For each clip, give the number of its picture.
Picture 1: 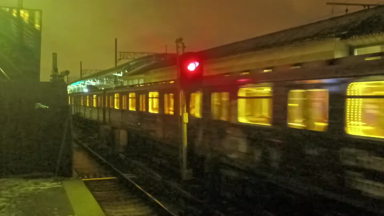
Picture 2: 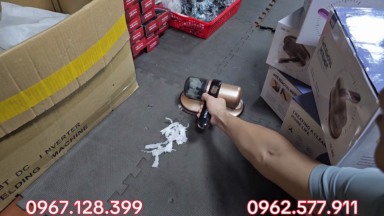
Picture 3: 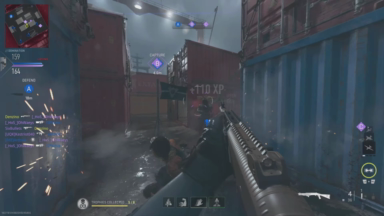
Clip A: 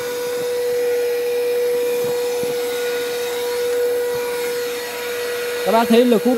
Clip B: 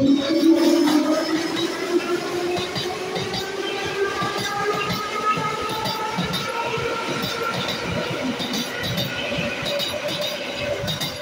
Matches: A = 2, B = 1